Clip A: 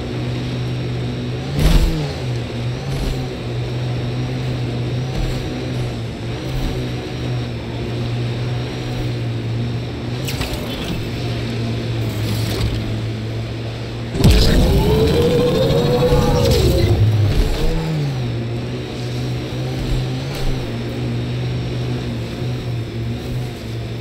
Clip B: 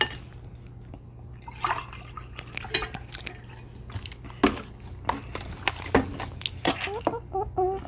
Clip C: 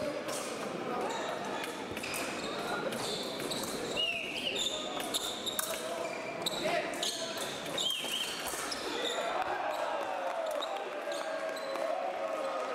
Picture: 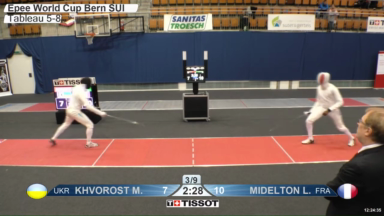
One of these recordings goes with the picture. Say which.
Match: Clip C